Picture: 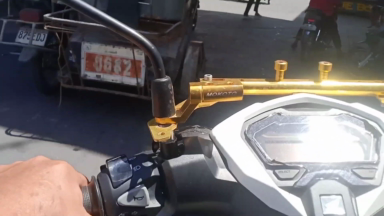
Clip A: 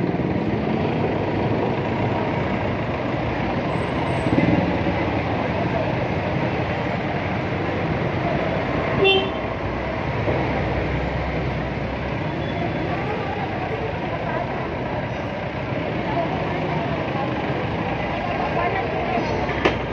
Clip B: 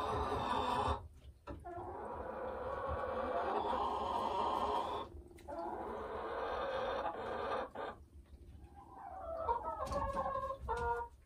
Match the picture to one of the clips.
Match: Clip A